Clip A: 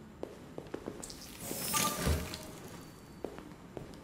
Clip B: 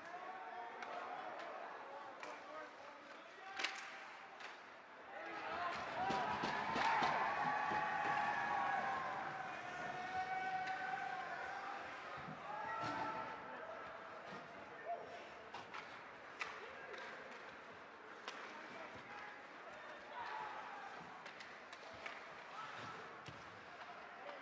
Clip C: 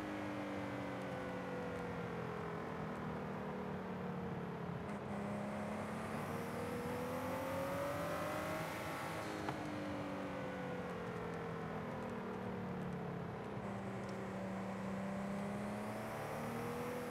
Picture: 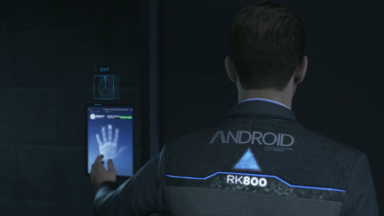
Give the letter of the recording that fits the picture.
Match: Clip A